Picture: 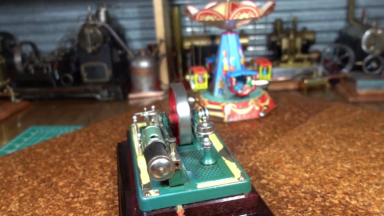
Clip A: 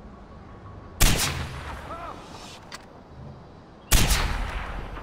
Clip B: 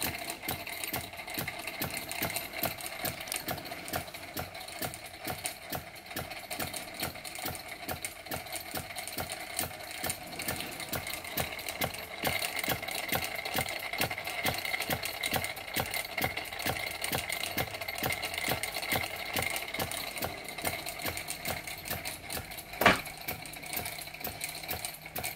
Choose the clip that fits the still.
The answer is B